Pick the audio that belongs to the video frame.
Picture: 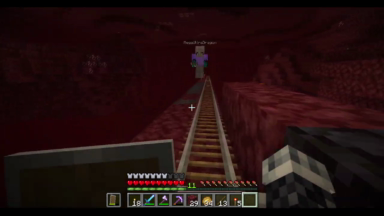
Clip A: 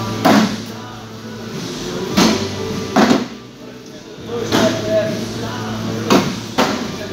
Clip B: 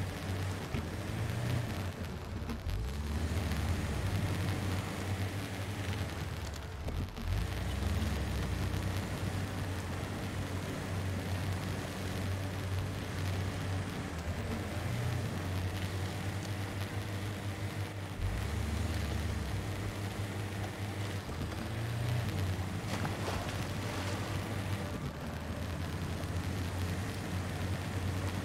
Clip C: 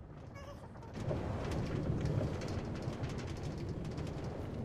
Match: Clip C